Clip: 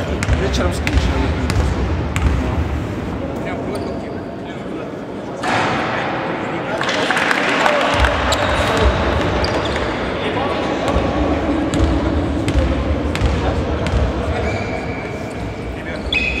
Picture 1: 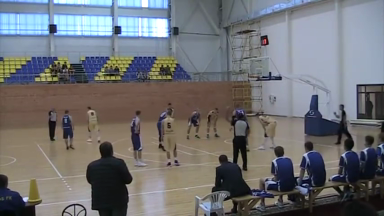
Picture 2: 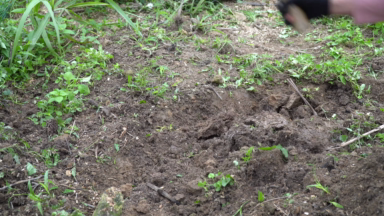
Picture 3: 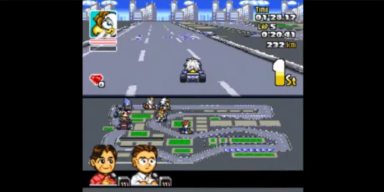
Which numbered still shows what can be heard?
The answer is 1